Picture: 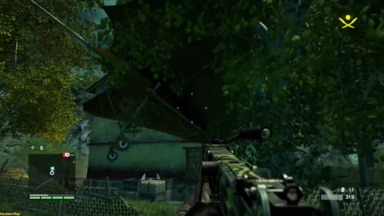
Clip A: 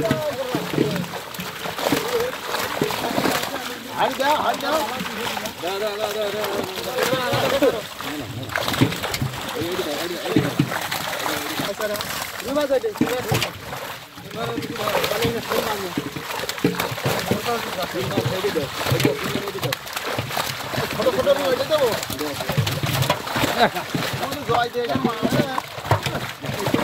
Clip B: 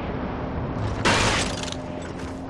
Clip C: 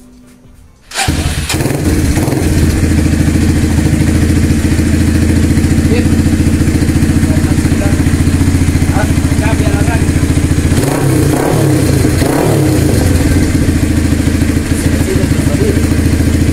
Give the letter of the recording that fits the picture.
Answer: B